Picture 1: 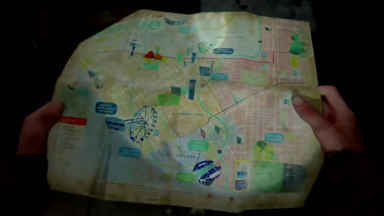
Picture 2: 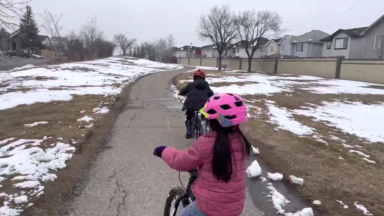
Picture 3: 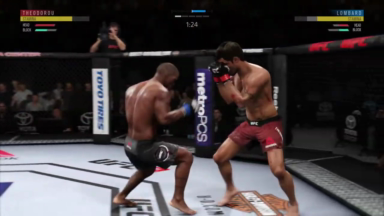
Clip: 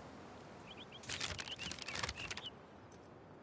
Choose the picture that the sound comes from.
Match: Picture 1